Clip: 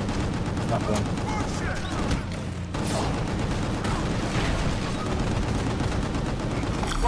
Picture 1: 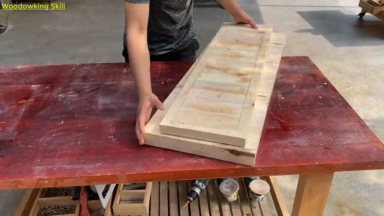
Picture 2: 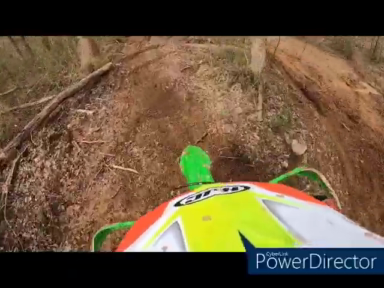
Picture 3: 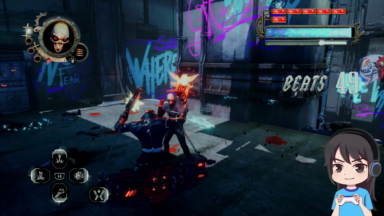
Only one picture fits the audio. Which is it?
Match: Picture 3